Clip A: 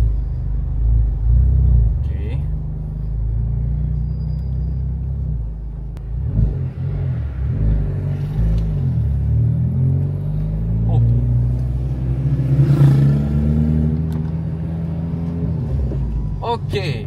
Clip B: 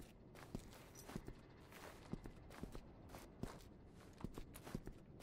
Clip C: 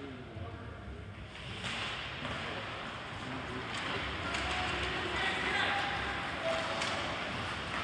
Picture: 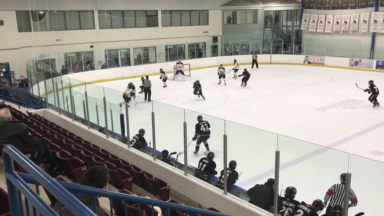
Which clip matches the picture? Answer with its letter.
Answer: C